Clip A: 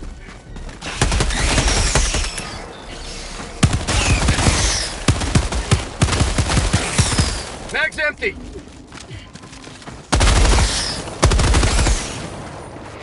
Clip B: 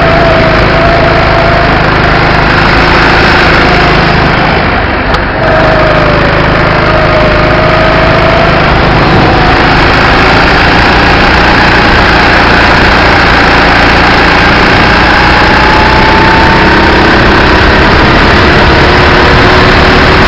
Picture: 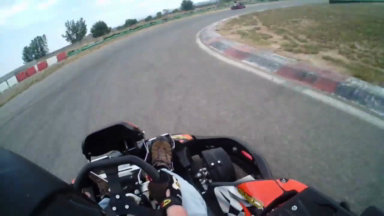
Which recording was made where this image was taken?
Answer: B